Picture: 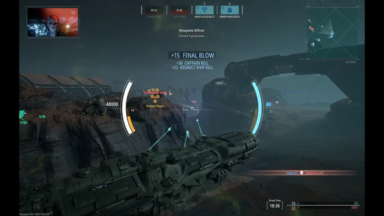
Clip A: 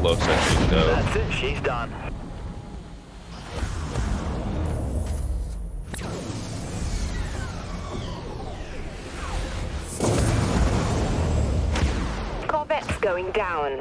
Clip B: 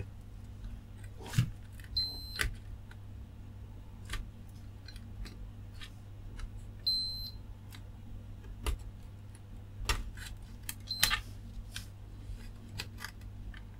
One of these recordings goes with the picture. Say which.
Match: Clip A